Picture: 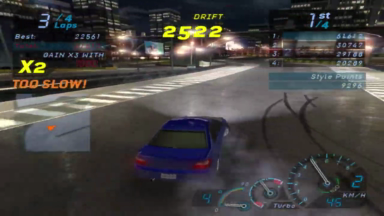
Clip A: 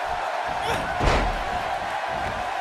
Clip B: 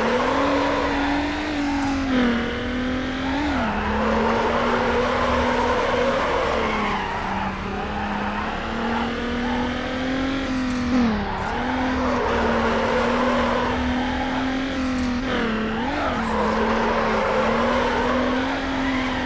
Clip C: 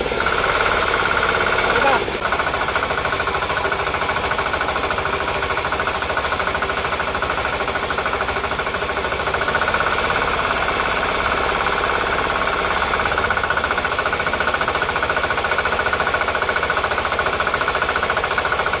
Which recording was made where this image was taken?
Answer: B